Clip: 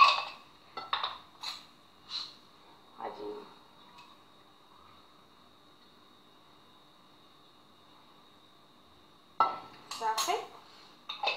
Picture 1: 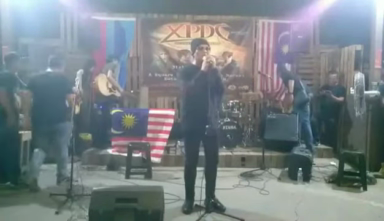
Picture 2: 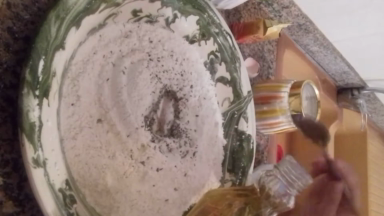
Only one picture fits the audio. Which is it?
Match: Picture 2